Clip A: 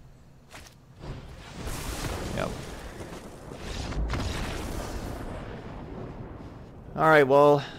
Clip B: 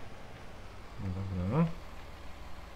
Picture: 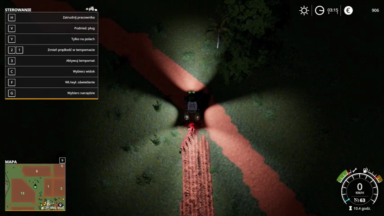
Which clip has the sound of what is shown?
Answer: B